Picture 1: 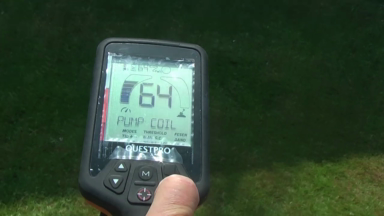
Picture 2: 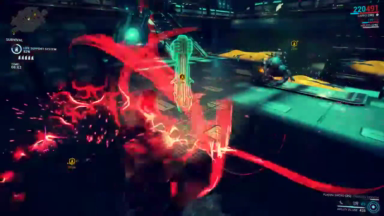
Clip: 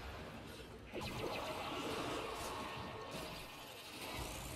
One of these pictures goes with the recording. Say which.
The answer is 2